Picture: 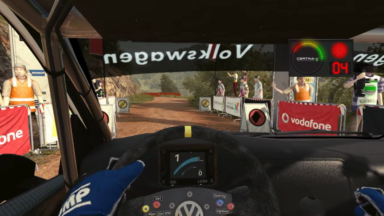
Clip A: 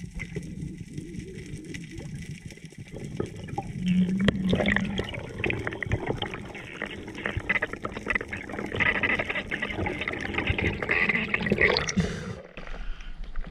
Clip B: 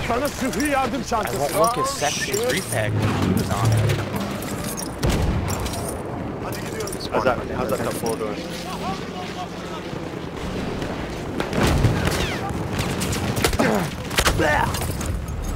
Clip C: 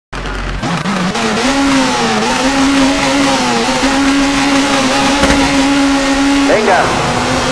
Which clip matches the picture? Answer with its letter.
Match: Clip C